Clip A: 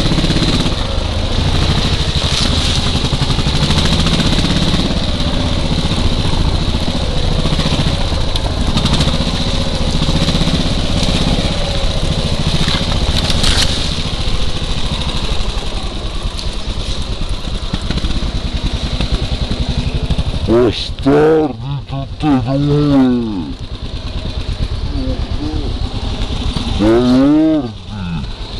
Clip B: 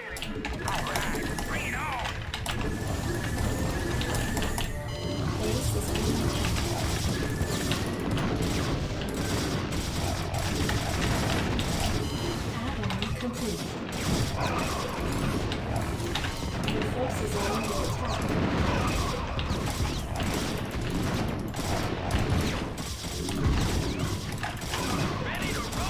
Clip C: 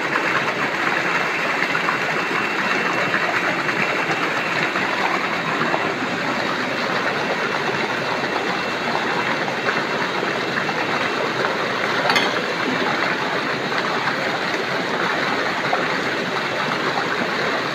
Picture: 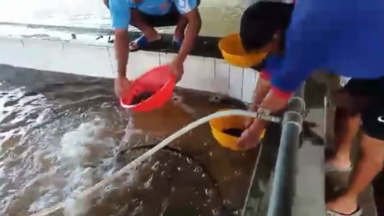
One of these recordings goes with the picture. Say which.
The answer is C